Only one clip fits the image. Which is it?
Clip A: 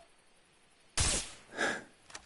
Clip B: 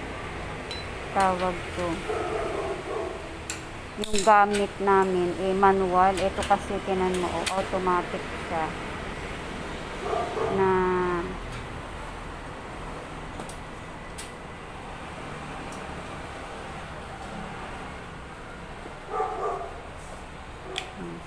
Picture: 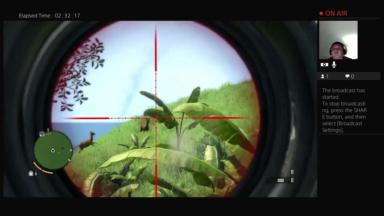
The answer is A